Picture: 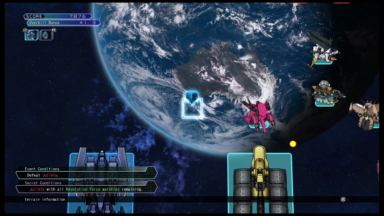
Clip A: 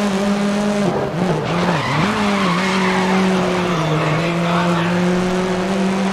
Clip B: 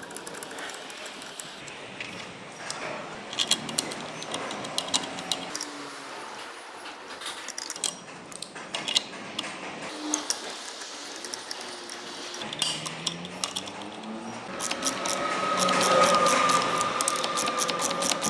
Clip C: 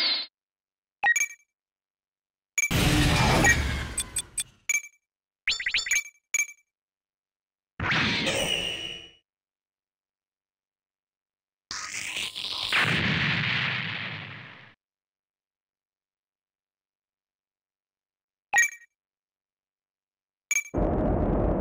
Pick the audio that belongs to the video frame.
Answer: C